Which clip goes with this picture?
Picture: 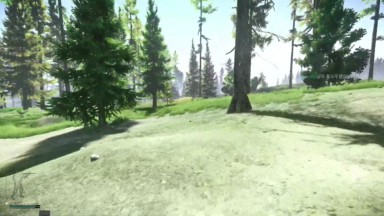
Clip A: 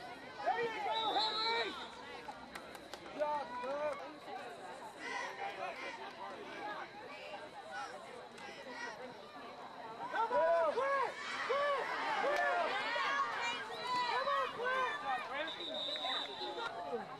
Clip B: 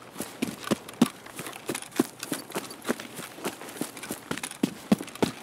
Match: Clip B